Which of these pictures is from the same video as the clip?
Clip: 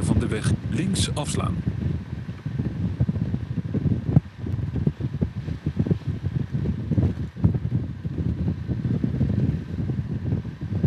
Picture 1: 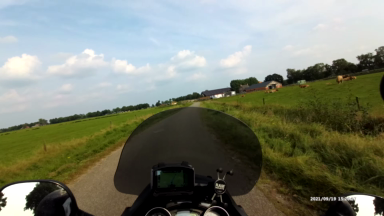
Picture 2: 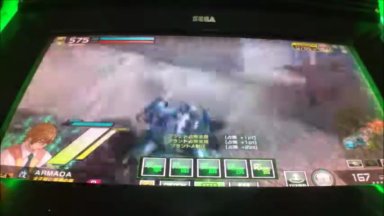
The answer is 1